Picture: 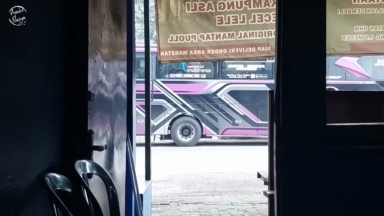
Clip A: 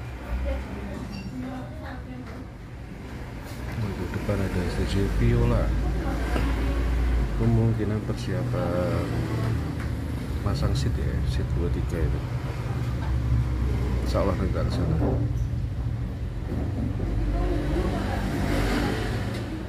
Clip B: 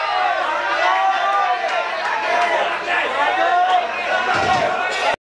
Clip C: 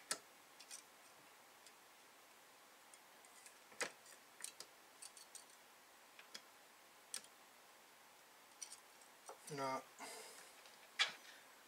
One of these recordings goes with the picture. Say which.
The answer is A